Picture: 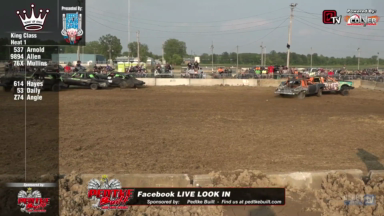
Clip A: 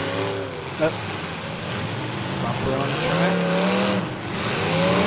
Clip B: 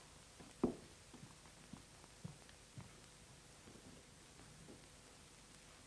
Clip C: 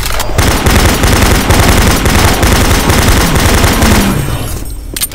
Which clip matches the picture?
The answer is A